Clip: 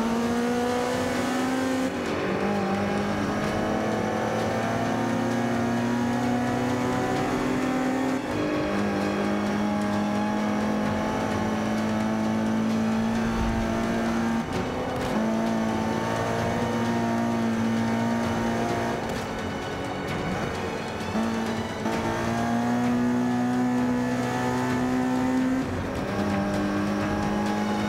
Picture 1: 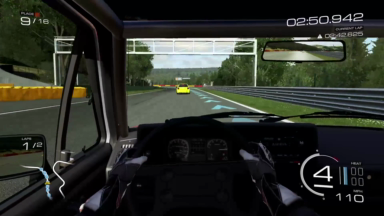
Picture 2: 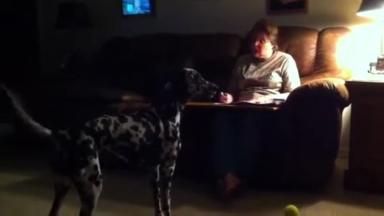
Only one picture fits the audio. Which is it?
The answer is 1